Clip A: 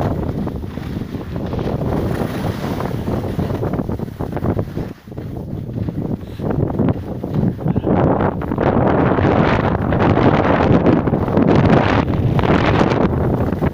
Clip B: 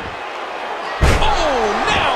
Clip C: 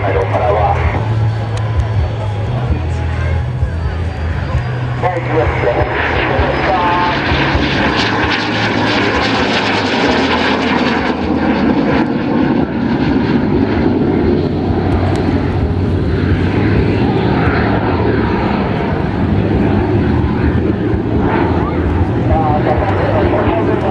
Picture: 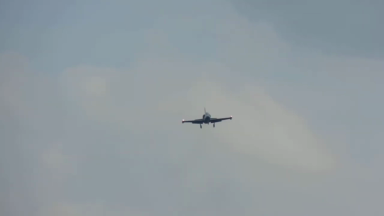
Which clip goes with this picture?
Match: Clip C